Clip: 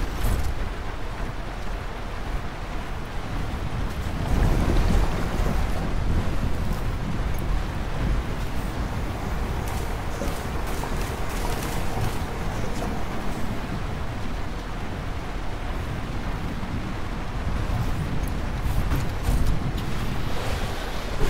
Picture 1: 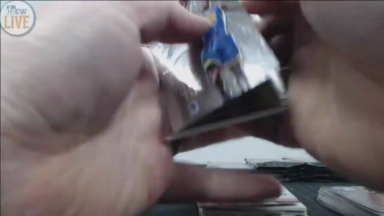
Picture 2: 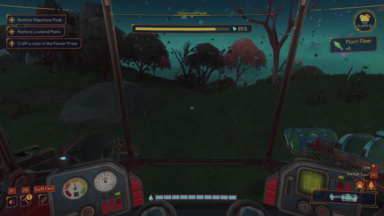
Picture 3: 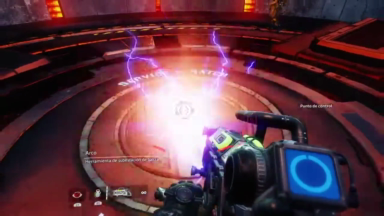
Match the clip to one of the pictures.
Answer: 2